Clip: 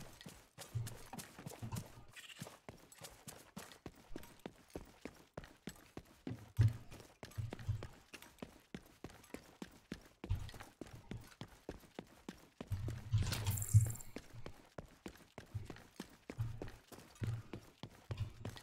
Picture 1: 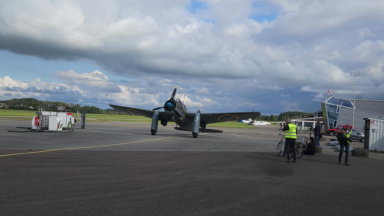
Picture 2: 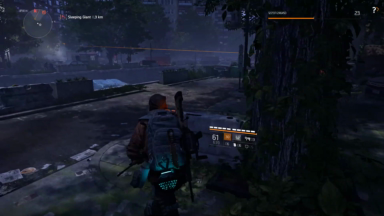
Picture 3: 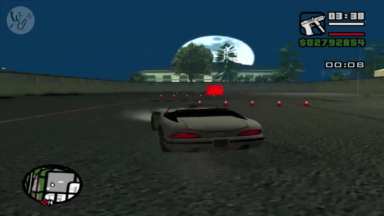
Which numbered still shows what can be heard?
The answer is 2